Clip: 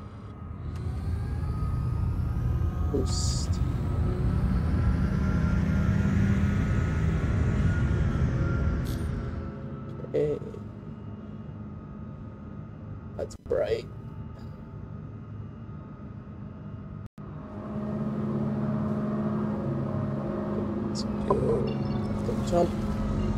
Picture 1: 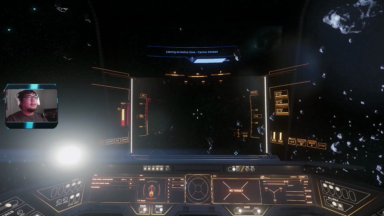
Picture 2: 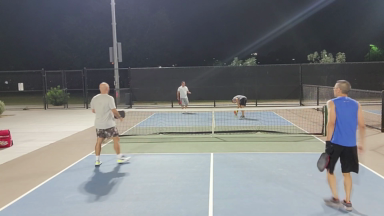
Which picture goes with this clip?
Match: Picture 1